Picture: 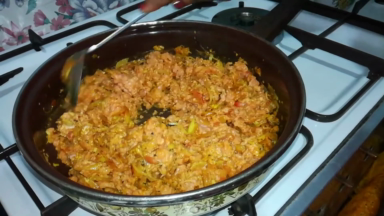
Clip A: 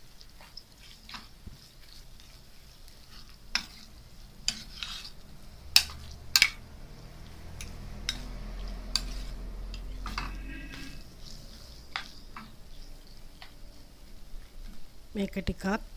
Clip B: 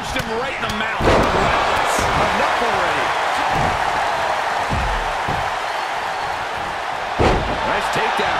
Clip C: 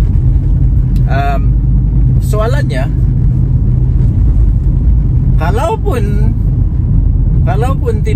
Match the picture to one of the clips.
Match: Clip A